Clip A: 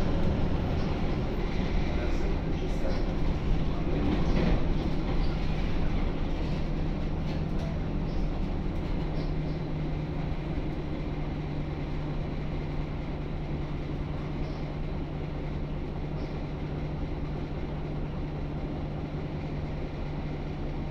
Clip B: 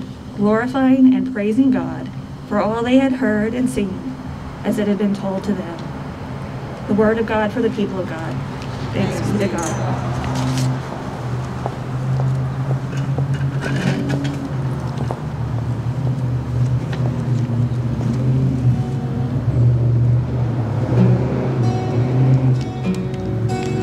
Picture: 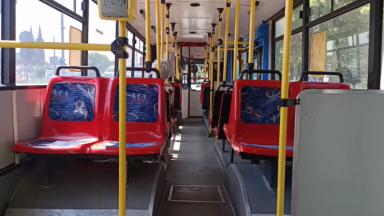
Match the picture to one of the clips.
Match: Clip A